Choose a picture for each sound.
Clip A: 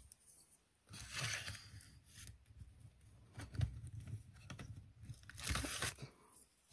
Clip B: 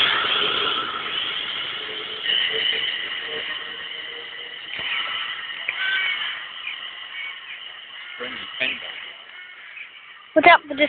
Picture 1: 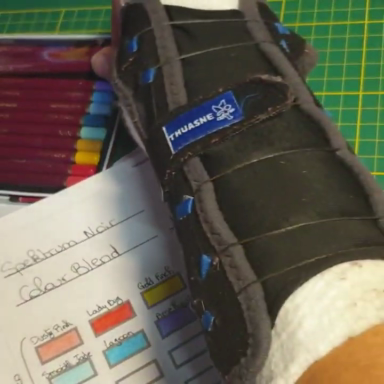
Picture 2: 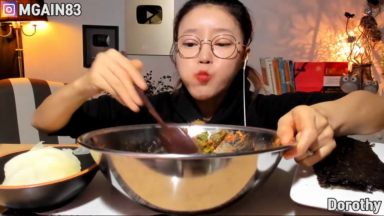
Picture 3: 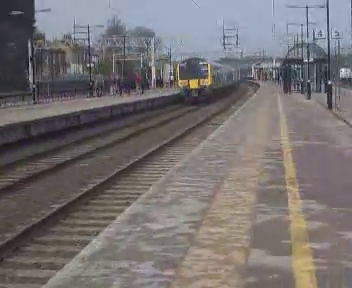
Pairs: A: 1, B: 3